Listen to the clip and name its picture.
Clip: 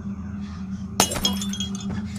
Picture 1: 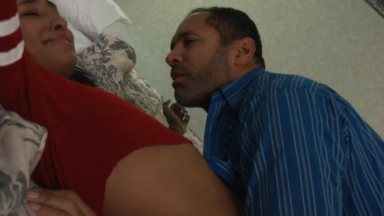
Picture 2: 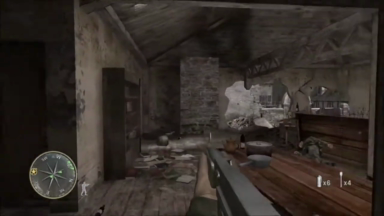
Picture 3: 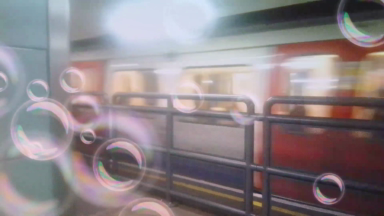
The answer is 1